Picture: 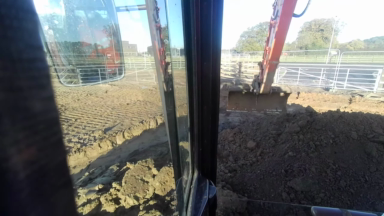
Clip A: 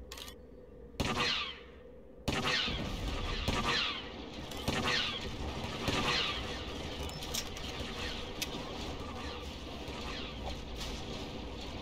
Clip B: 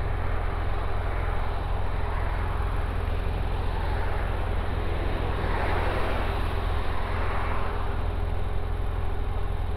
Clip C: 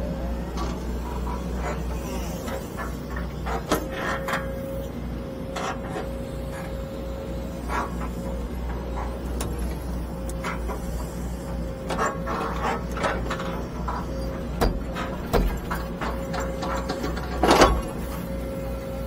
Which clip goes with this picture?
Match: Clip C